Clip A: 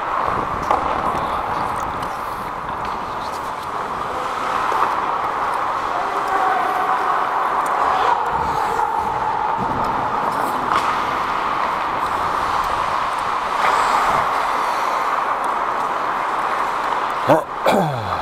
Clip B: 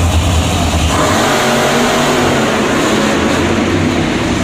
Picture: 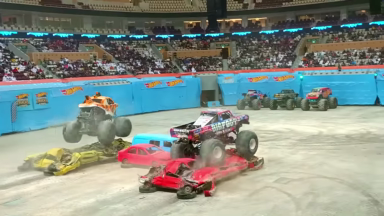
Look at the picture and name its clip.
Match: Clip B